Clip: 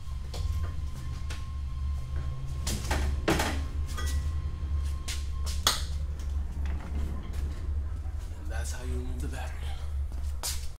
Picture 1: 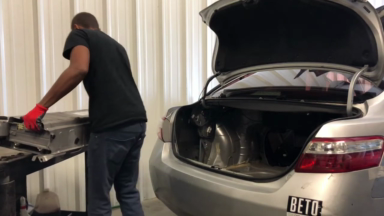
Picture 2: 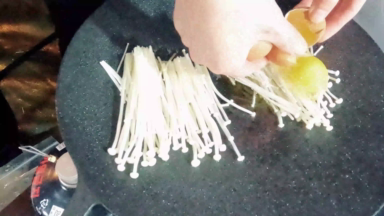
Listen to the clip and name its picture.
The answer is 1